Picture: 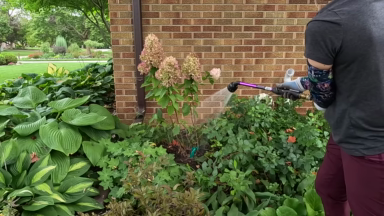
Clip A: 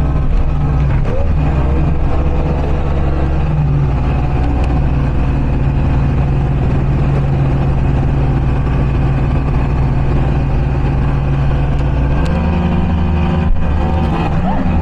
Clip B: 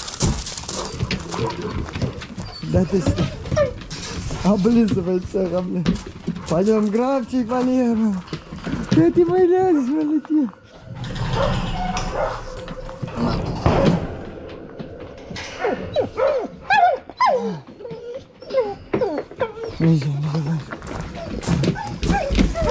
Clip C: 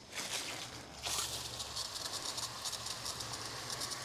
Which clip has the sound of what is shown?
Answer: C